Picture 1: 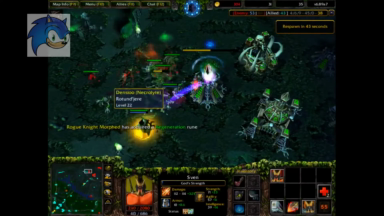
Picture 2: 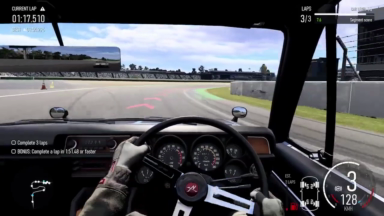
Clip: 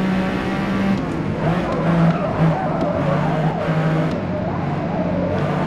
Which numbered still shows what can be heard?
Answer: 2